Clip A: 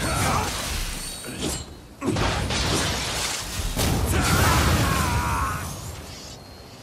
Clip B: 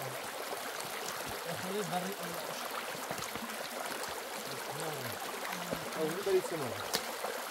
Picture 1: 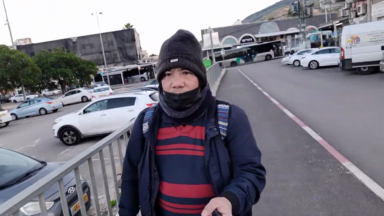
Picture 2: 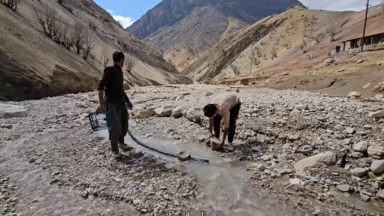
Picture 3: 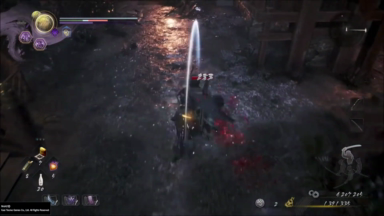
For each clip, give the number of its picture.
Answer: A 3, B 2